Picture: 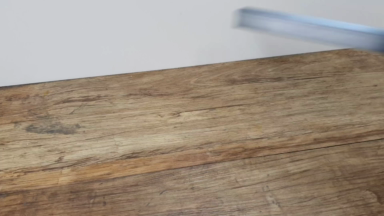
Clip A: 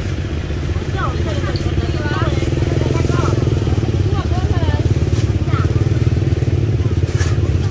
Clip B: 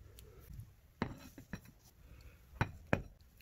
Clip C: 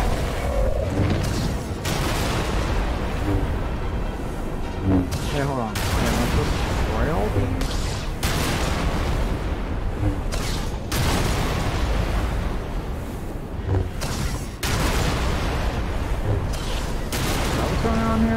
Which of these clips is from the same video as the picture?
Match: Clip B